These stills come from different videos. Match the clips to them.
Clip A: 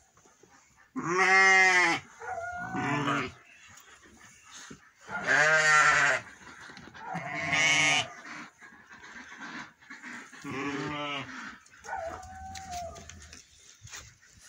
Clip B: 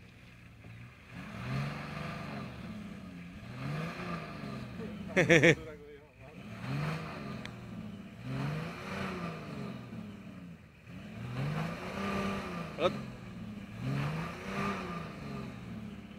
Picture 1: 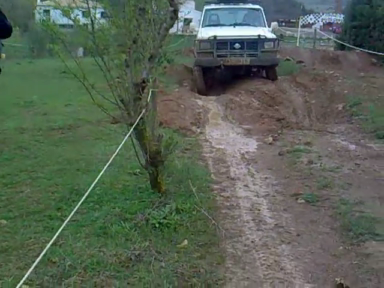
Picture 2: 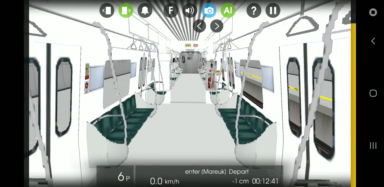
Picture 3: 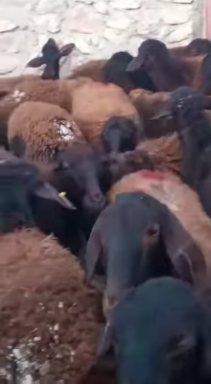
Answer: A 3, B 1